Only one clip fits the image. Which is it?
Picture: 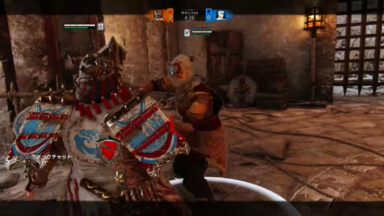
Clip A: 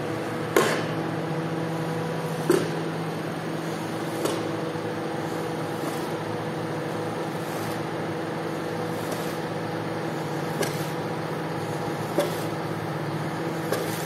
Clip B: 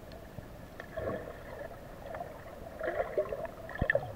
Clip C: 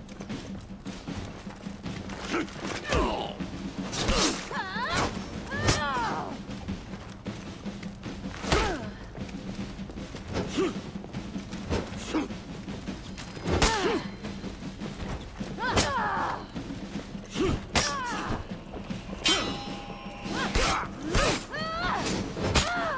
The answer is C